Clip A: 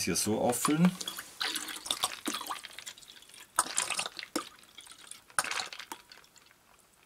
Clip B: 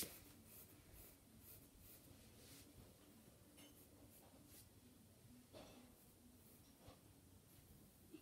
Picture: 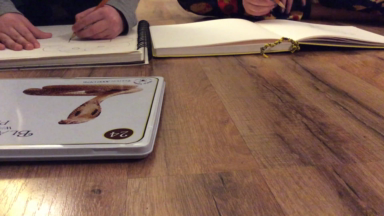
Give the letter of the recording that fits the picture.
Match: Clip B